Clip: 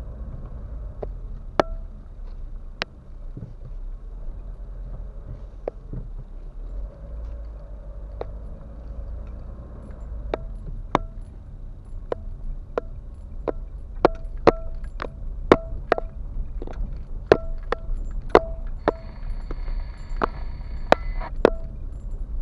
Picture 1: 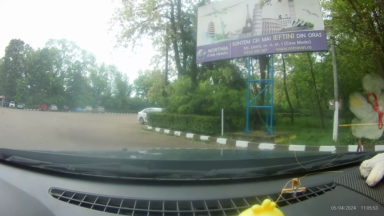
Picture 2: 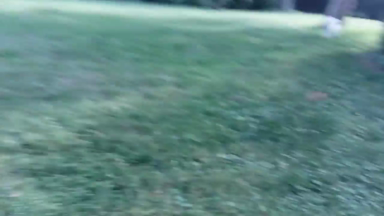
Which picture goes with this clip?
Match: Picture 1